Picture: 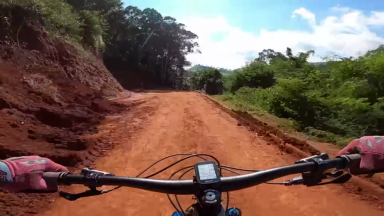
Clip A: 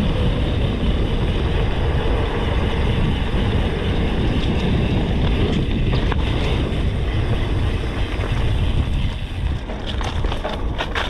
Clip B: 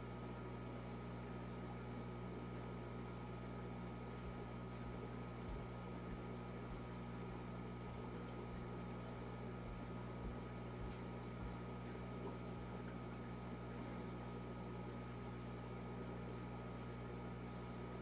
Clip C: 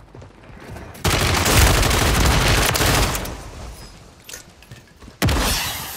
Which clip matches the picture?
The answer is A